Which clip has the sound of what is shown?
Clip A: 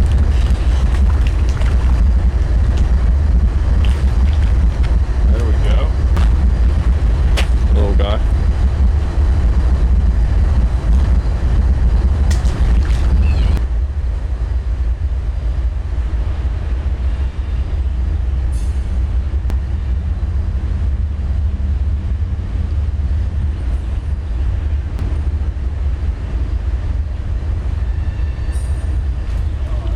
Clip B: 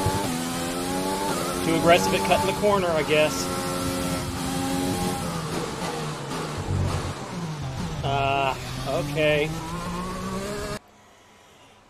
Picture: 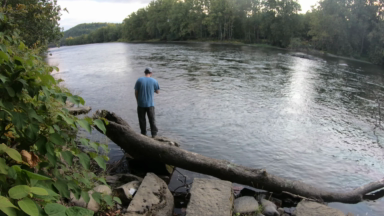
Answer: A